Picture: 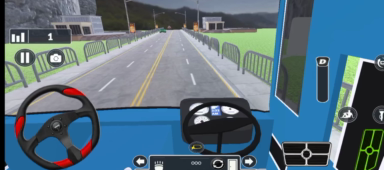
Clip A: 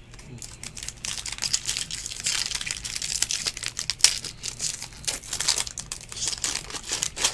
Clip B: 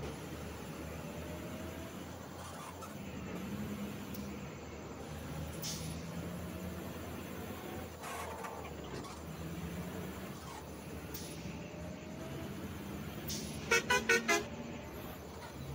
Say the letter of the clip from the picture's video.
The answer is B